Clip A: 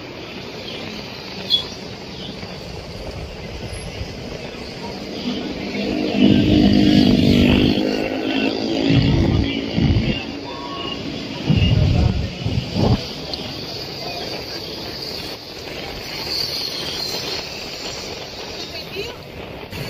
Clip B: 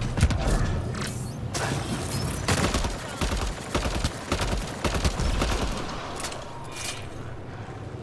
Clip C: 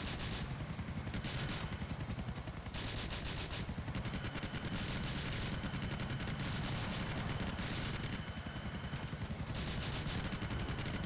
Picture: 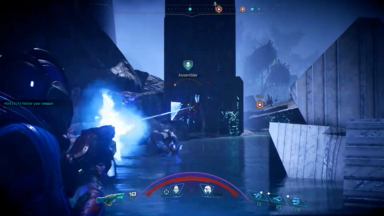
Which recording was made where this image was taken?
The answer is B